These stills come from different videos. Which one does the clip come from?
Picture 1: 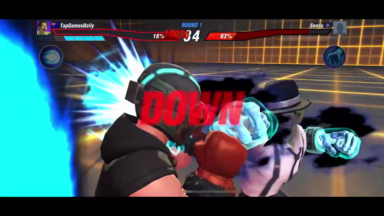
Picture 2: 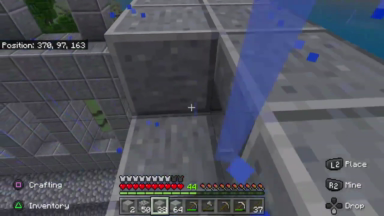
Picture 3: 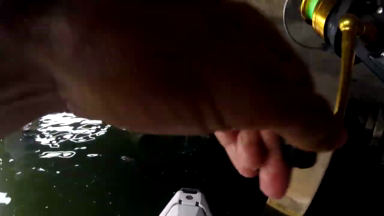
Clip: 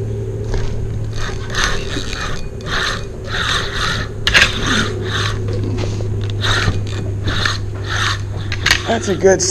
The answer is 3